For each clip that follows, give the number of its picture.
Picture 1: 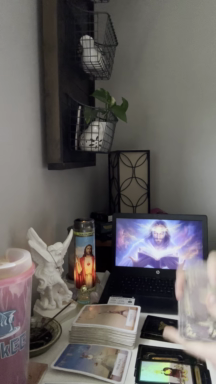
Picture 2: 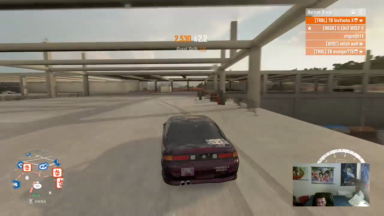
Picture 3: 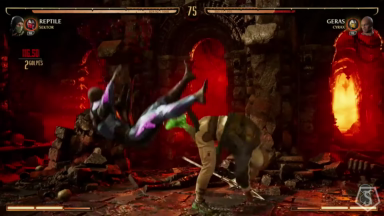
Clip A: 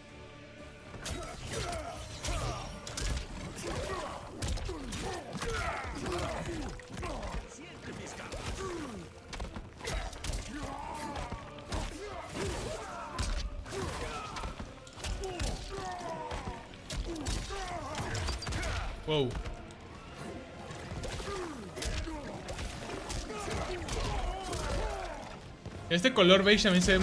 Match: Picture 3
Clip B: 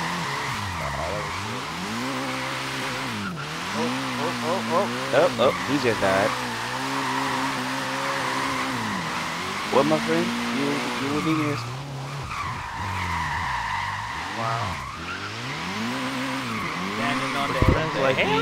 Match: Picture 2